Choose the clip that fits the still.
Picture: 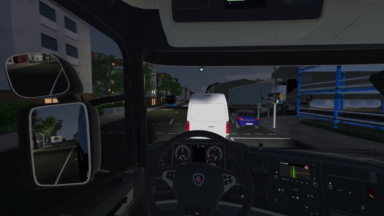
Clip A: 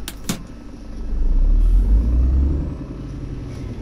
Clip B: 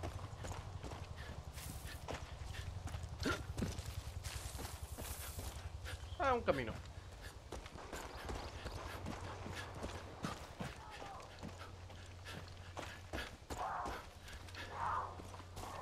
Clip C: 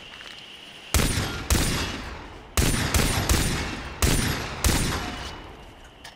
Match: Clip A